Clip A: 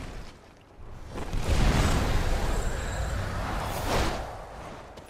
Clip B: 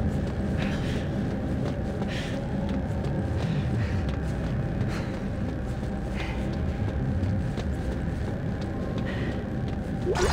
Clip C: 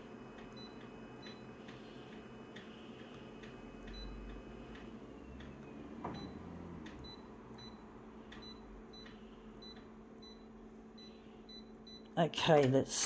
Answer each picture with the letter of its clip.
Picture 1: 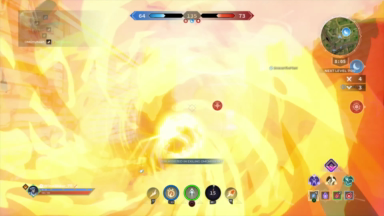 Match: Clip A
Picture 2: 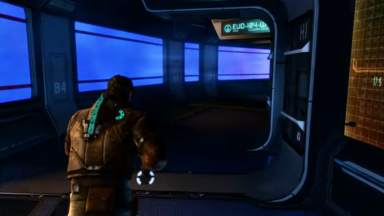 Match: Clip B